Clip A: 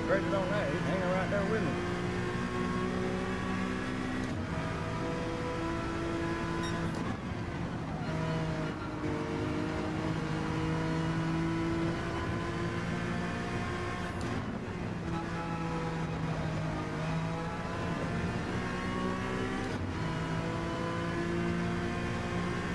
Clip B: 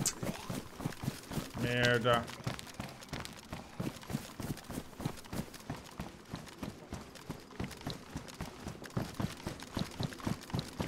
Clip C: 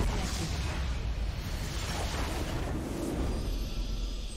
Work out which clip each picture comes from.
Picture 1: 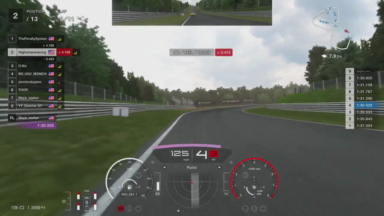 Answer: A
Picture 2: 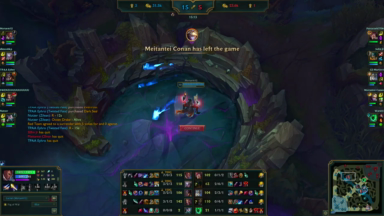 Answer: C